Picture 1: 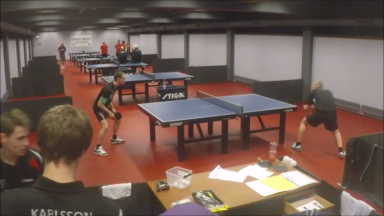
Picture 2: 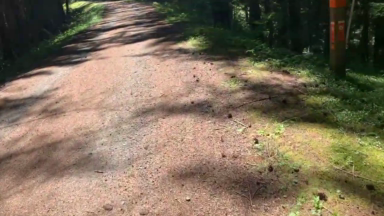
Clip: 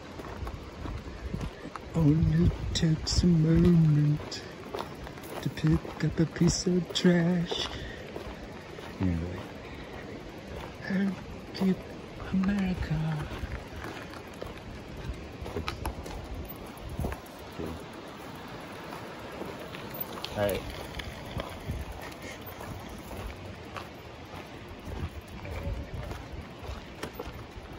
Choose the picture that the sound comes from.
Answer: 2